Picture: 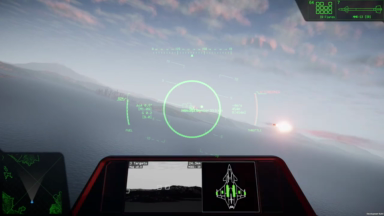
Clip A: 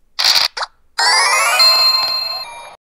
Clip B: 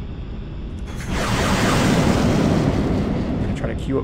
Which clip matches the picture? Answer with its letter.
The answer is B